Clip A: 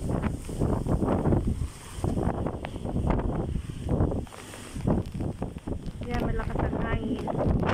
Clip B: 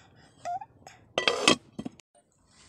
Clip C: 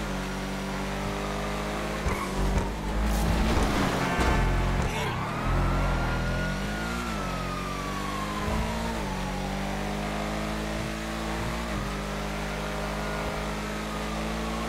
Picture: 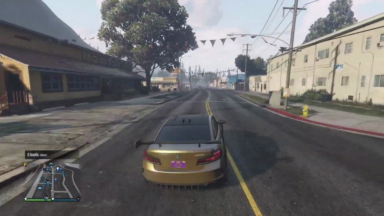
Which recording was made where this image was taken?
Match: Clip C